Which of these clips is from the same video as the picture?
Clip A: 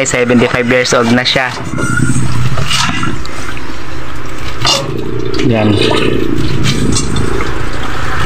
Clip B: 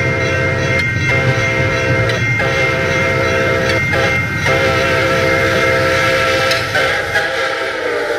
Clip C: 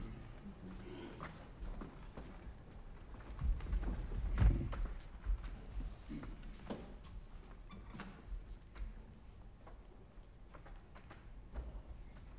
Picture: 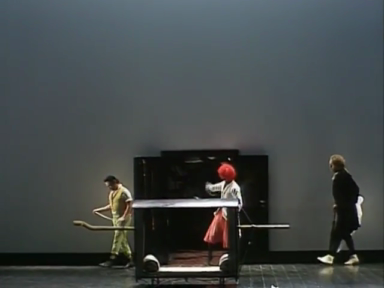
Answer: C